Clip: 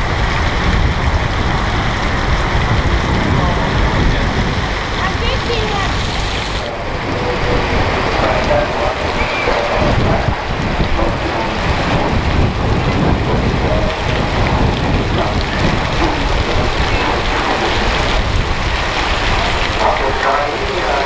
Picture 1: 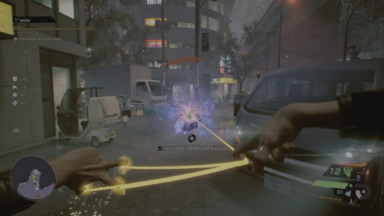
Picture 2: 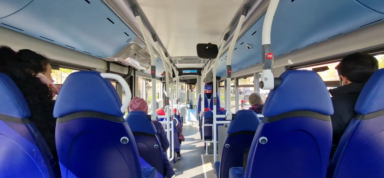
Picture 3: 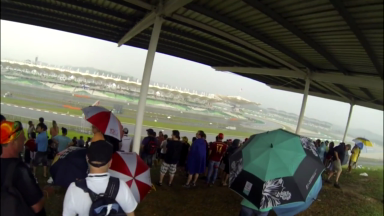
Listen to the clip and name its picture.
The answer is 3